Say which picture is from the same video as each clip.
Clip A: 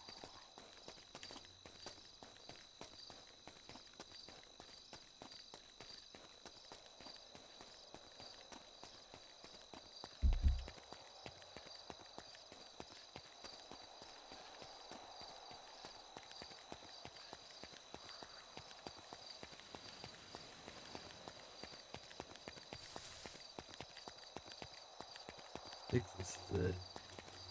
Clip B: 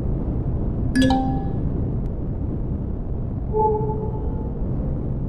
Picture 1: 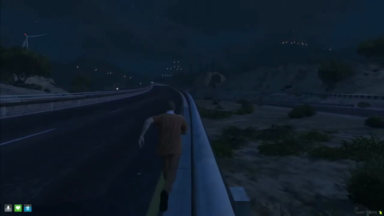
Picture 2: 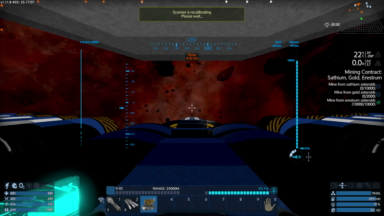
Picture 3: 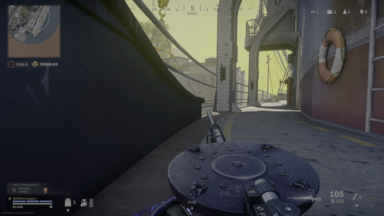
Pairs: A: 1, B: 2